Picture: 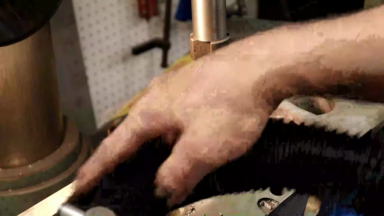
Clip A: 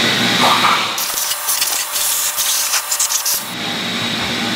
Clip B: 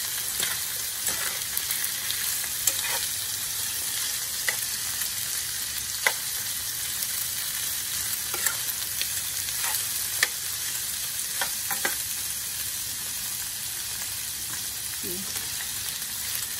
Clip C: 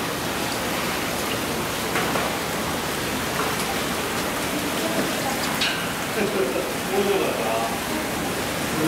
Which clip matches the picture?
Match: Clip A